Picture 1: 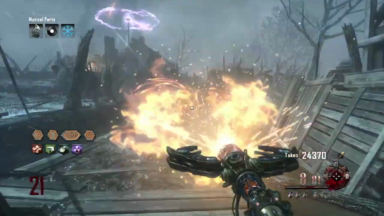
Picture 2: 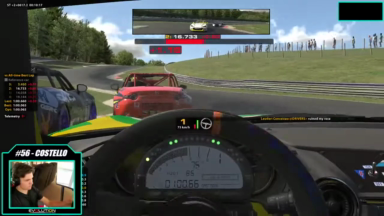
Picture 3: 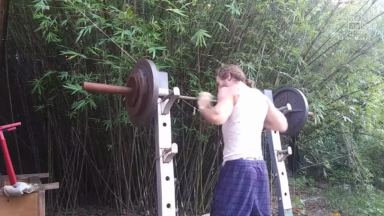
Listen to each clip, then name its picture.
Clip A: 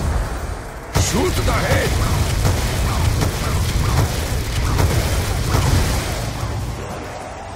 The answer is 1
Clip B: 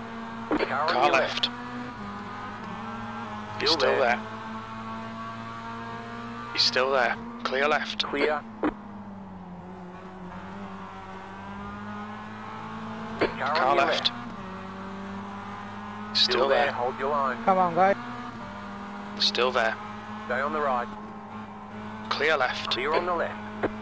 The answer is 2